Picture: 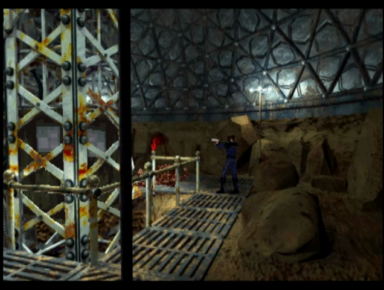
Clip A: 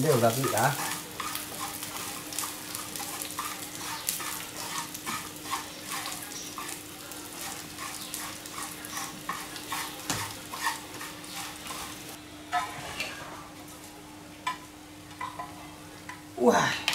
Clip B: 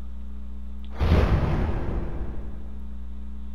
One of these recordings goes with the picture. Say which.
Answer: B